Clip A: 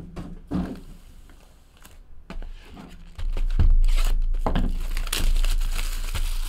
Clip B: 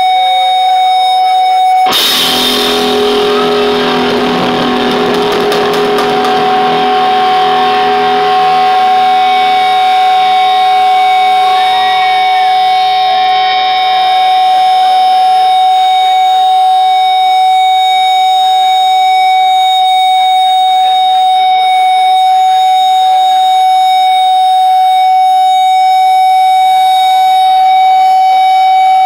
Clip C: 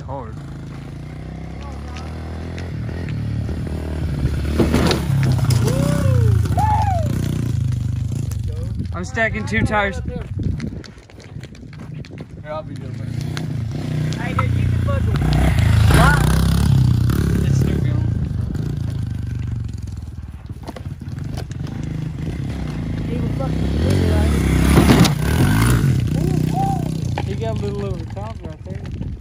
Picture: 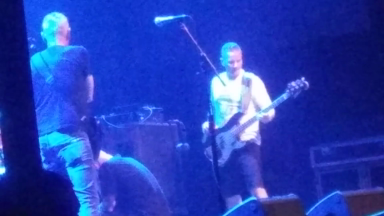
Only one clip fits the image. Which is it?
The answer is B